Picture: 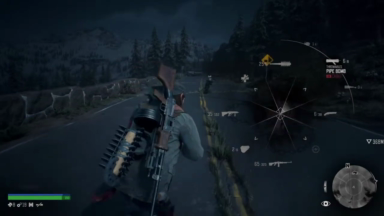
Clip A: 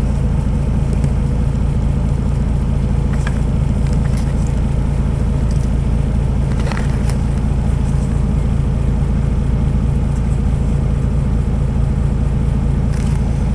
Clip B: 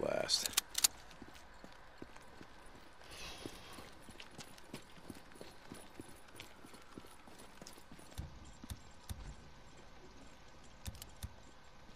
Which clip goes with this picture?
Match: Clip B